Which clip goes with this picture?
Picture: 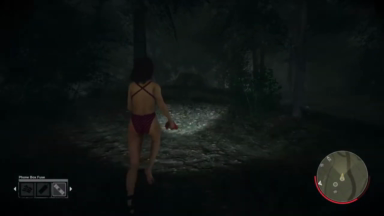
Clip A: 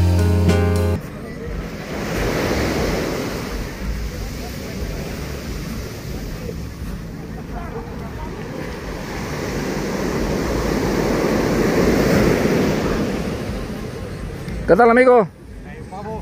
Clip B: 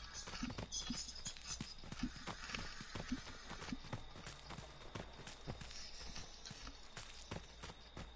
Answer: B